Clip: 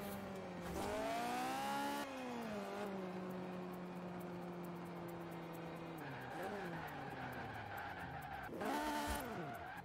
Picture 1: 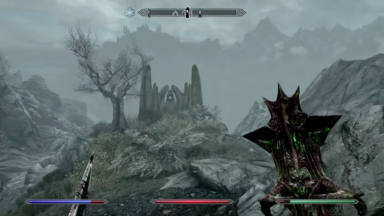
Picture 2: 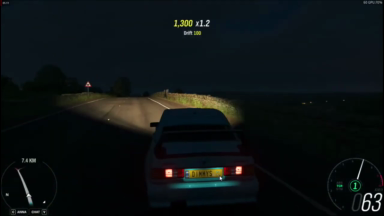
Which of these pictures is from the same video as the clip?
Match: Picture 2